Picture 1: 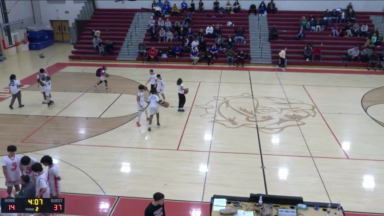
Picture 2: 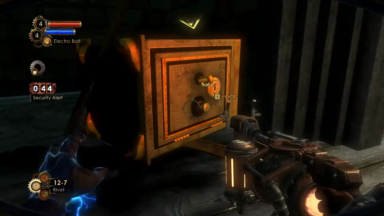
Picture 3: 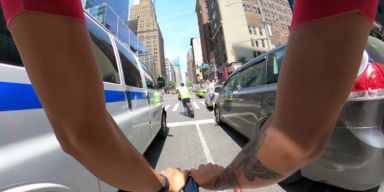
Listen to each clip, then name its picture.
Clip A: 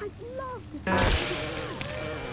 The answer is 2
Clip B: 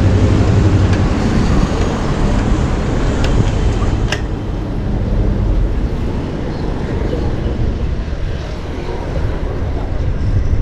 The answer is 3